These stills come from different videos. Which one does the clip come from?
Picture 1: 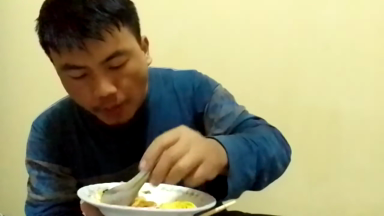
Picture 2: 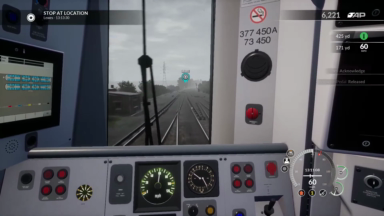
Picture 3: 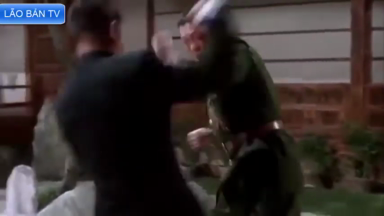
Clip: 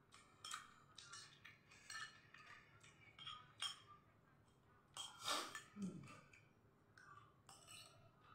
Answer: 1